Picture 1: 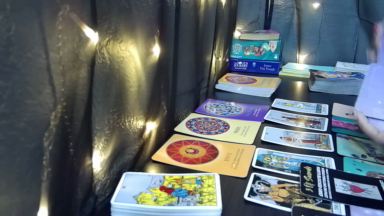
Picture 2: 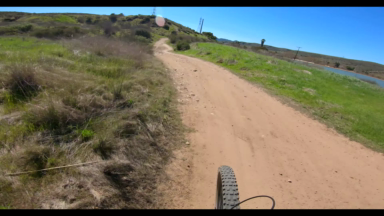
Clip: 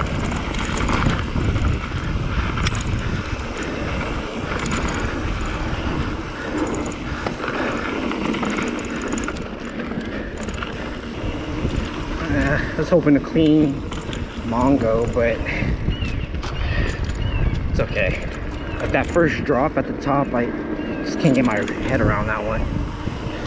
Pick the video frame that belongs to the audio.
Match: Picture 2